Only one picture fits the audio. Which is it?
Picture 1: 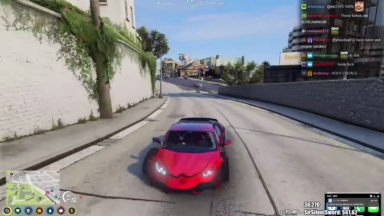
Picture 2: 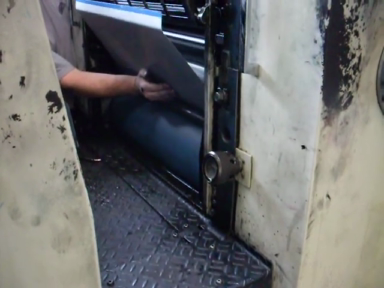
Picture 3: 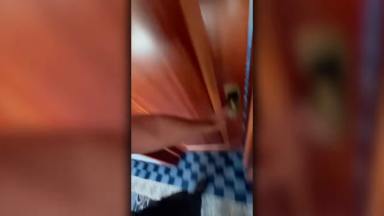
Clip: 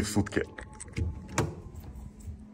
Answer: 3